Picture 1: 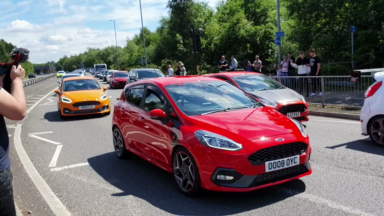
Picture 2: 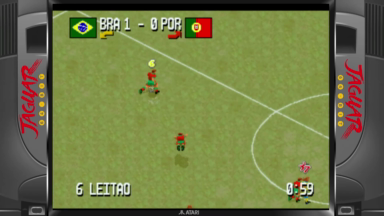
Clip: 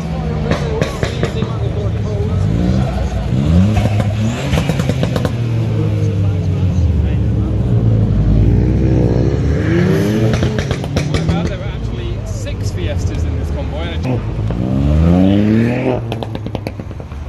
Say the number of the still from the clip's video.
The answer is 1